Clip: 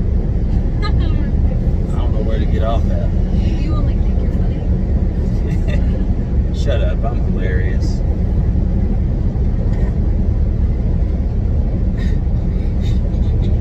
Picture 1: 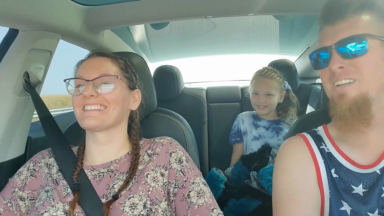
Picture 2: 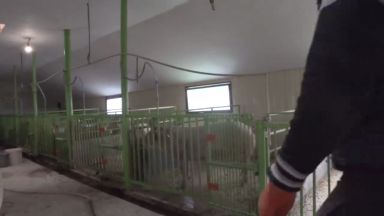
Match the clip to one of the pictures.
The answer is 1